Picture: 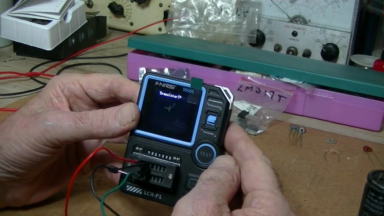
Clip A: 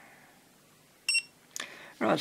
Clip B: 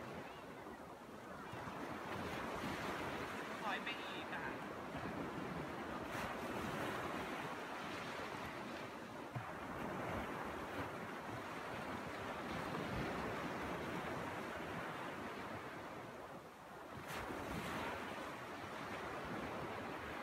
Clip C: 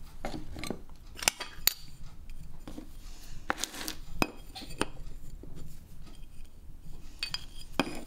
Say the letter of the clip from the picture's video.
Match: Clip A